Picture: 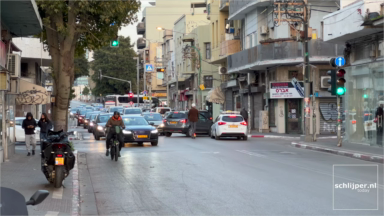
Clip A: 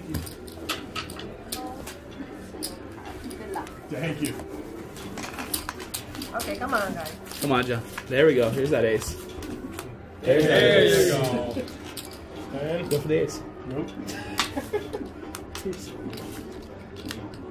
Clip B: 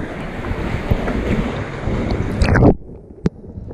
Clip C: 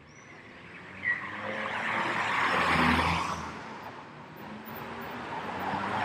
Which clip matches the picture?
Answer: C